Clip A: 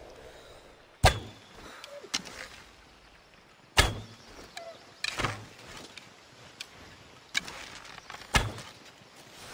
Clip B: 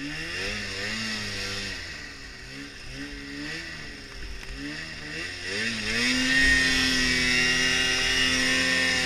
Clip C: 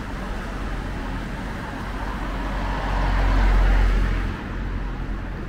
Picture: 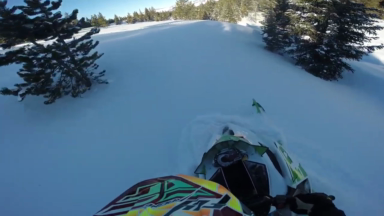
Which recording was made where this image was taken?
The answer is B